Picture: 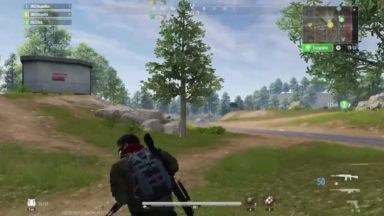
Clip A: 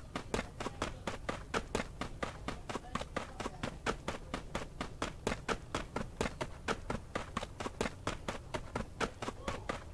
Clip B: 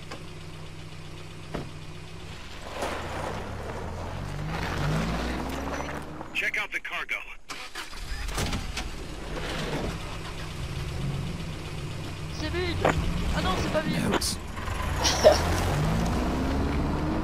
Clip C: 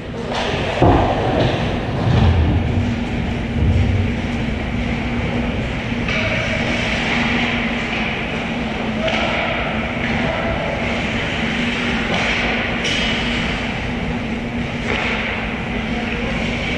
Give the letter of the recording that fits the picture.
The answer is A